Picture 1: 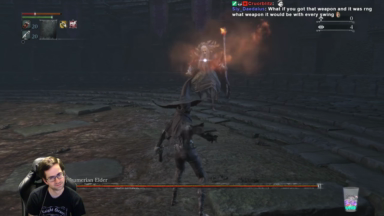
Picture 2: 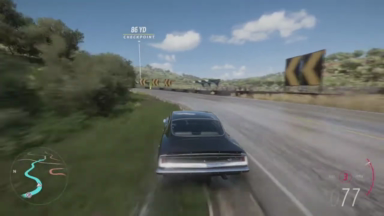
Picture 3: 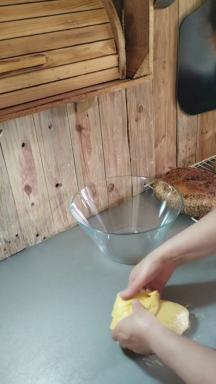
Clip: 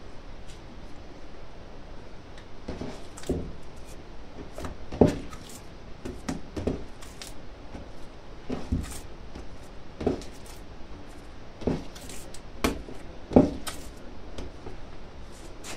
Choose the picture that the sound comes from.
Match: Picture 3